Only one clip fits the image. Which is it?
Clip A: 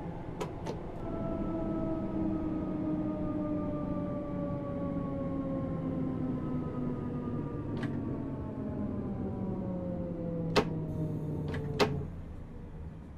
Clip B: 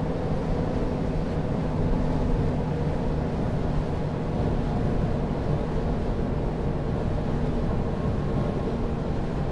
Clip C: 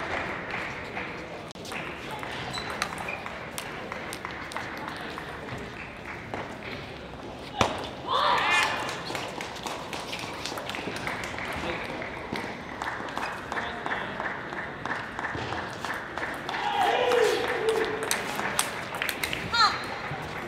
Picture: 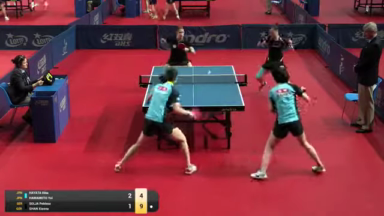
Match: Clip C